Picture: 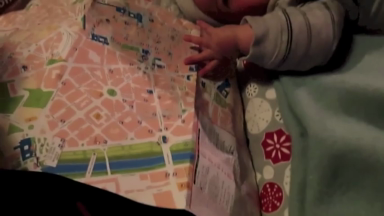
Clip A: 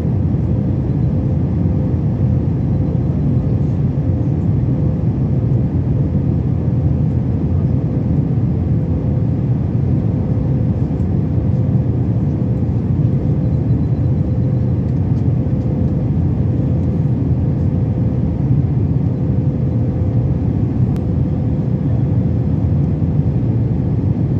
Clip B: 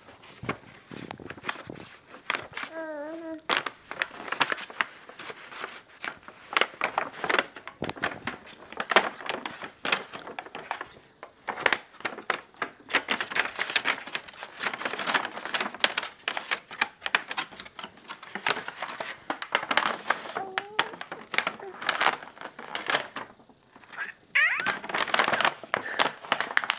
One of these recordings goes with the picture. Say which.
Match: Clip B